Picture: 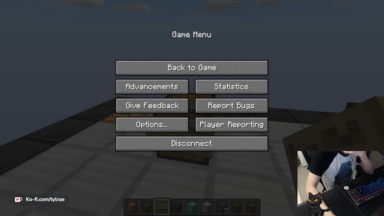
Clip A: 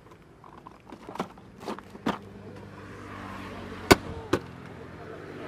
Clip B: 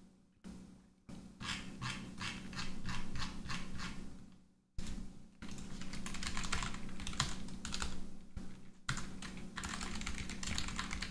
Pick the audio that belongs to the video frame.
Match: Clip B